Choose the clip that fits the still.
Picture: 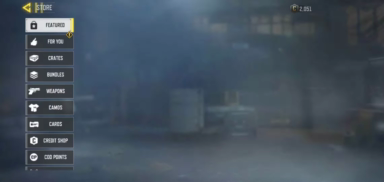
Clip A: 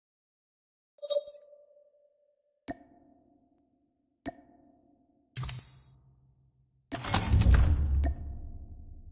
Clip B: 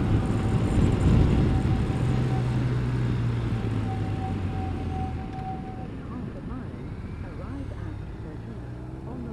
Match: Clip A